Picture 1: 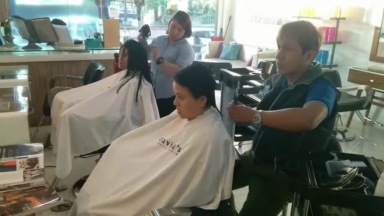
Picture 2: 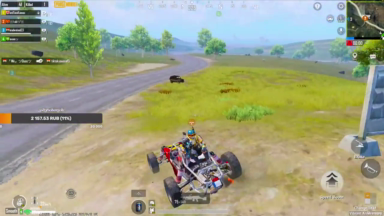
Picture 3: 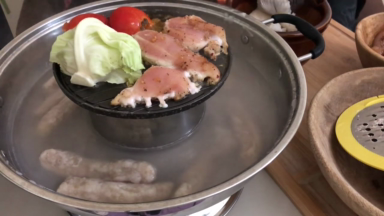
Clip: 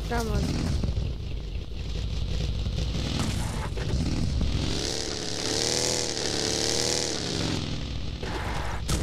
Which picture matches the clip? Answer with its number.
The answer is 2